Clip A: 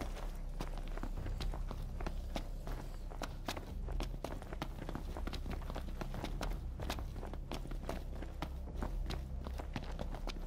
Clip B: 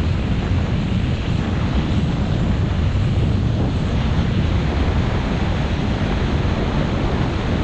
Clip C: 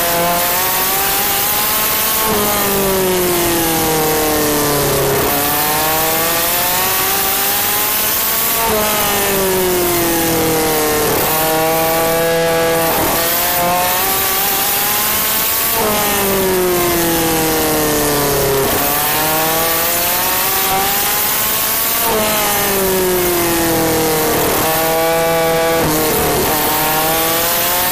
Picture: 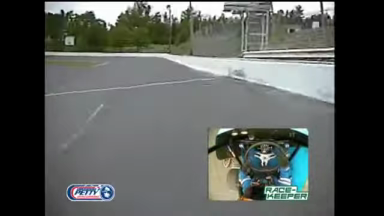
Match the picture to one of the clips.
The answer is C